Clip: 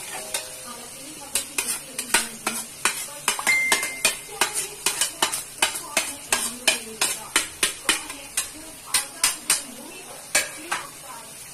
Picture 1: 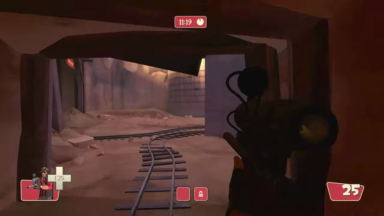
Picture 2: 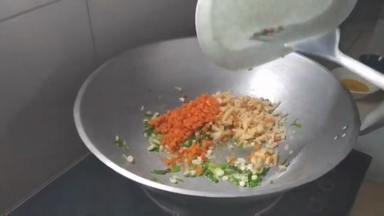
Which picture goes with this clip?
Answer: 2